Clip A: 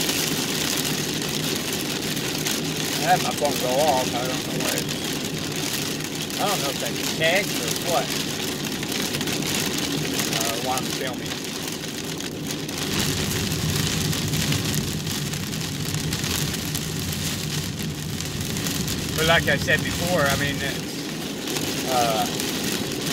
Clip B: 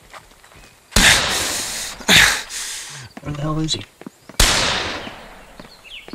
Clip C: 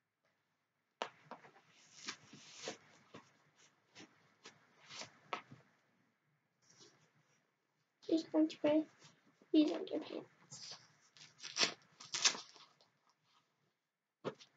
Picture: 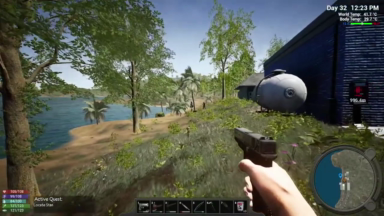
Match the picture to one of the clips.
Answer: B